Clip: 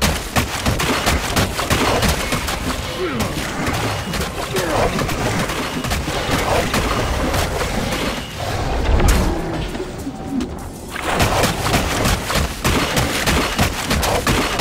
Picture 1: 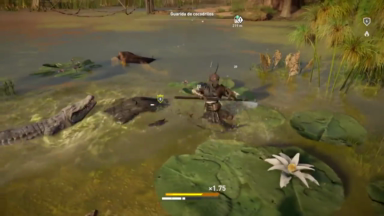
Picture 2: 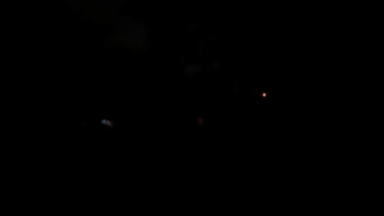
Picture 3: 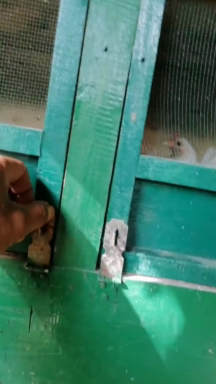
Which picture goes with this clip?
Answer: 1